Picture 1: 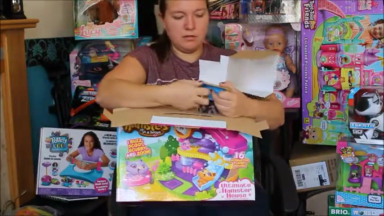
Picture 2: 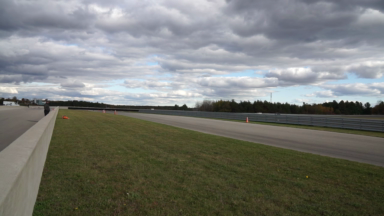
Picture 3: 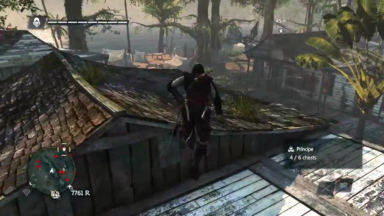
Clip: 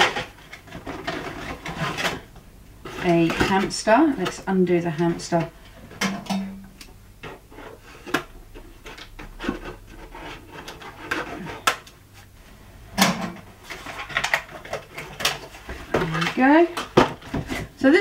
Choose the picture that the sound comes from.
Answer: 1